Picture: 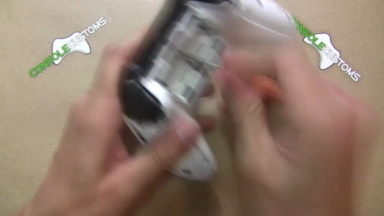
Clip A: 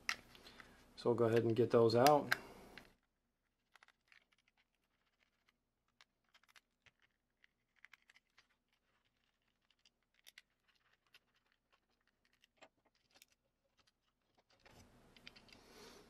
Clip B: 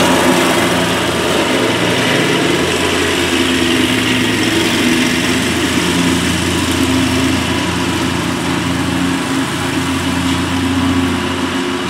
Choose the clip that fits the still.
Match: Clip A